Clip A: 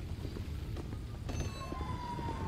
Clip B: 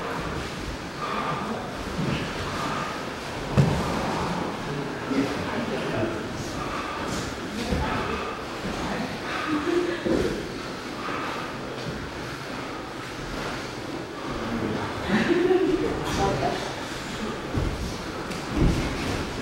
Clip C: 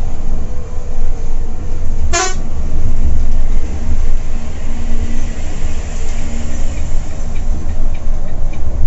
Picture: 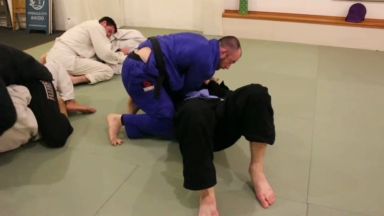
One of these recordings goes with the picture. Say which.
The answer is B